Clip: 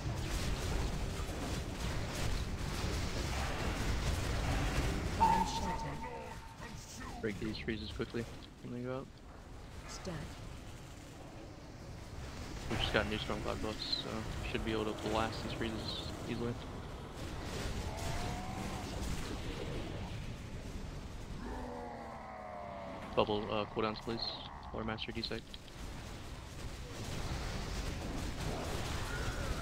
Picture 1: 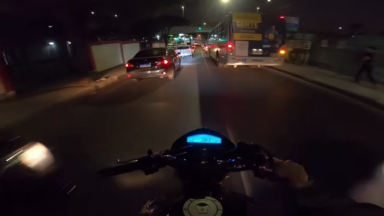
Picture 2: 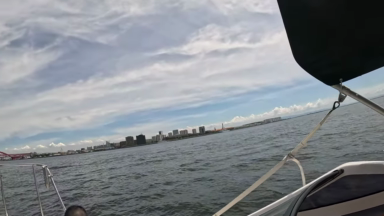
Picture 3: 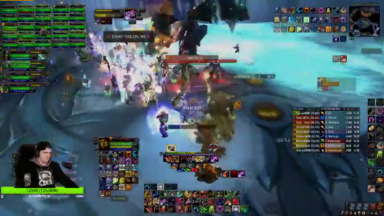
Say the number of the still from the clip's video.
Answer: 3